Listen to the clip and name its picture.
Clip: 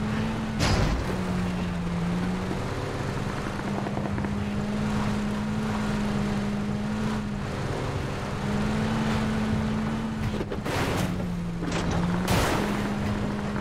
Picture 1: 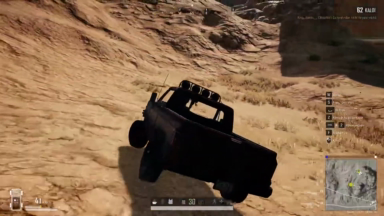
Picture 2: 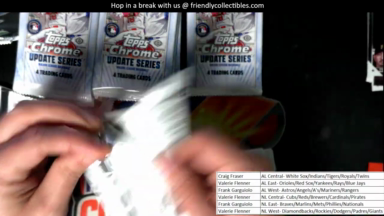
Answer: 1